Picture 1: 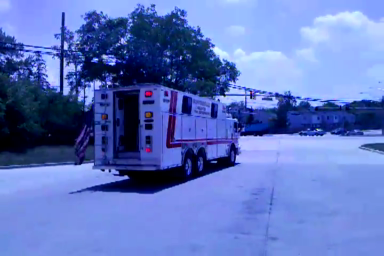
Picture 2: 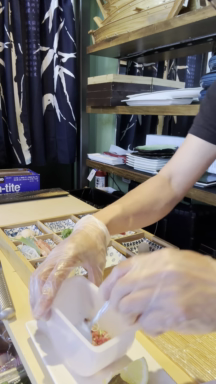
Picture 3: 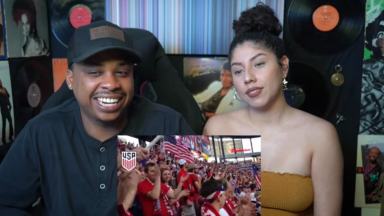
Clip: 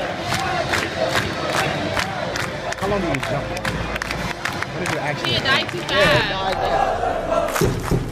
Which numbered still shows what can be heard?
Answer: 3